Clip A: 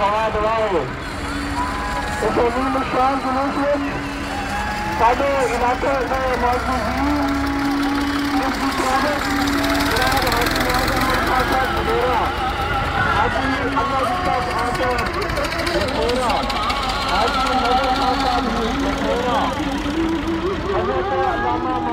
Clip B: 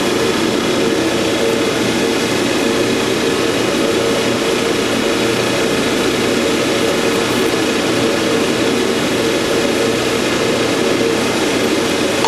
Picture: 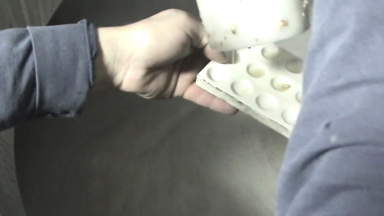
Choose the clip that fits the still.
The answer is B